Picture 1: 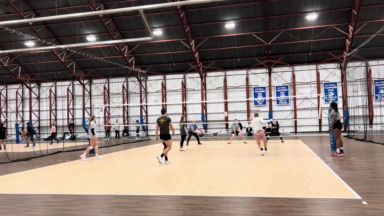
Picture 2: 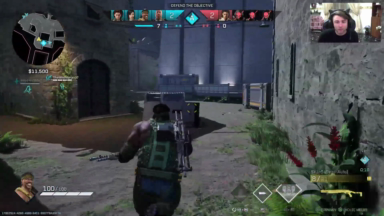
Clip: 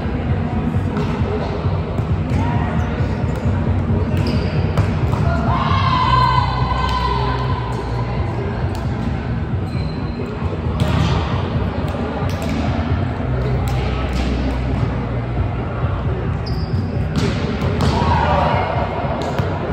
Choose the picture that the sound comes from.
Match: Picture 1